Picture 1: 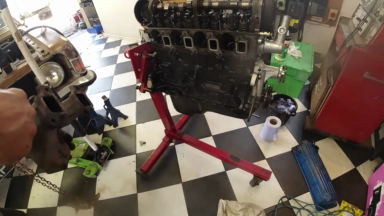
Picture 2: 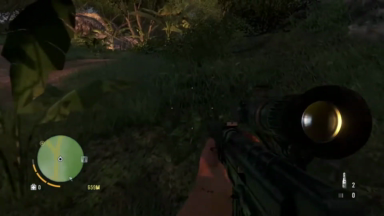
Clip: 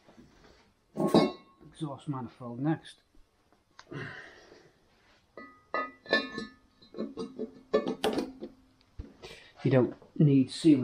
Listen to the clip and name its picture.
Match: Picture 1